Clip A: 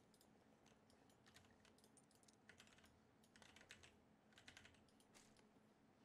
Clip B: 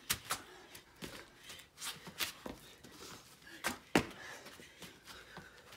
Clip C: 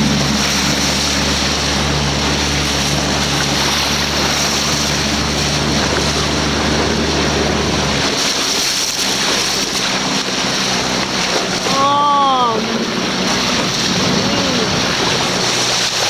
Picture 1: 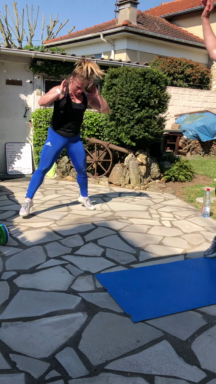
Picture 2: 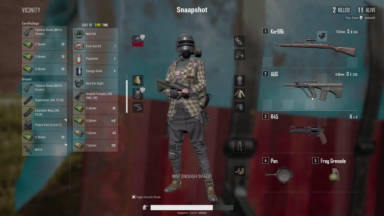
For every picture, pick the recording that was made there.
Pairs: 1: B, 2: A